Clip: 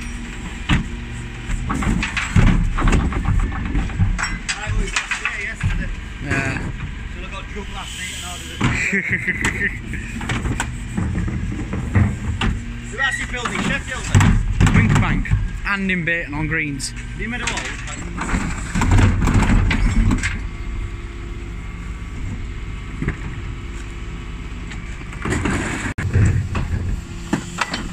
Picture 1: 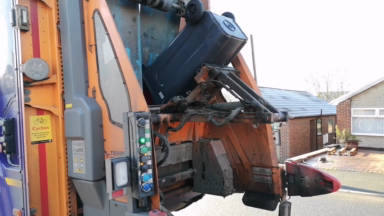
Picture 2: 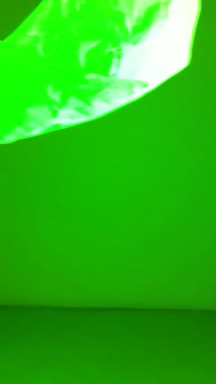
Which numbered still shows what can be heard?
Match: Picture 1